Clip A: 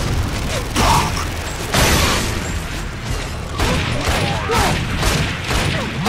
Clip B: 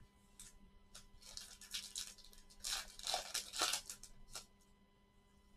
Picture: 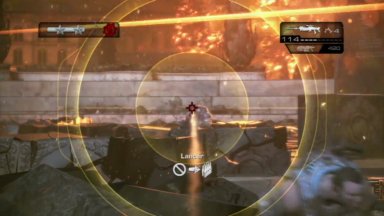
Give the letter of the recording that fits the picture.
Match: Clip A